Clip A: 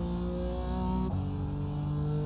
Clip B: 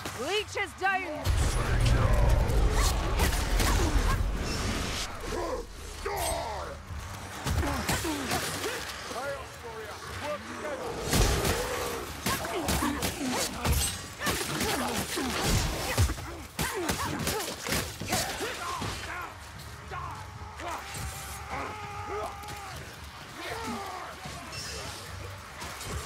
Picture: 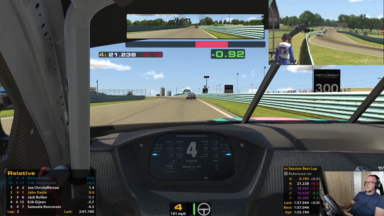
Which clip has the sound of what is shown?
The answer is A